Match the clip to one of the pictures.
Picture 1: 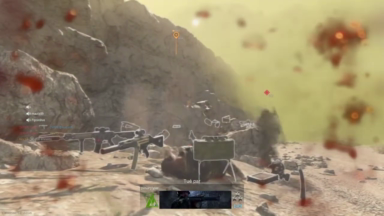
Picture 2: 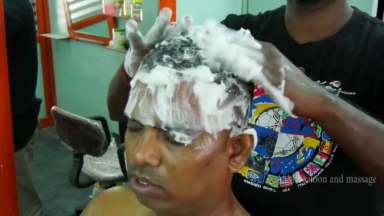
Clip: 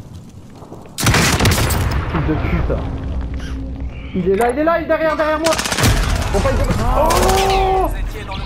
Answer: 1